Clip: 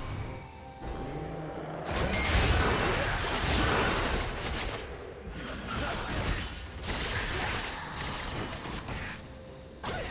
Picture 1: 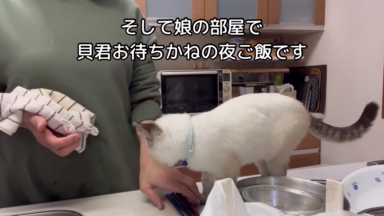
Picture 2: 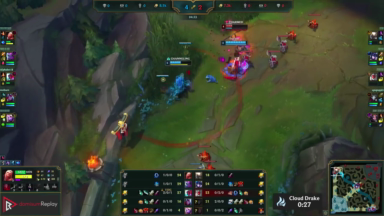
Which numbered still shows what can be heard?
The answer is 2